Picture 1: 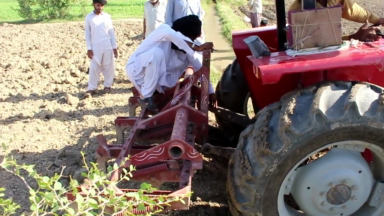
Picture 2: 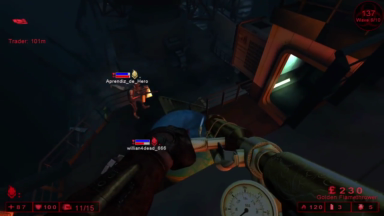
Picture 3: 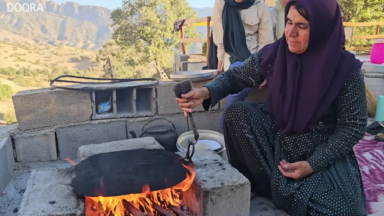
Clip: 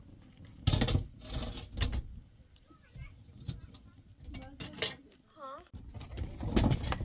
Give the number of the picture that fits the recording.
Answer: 3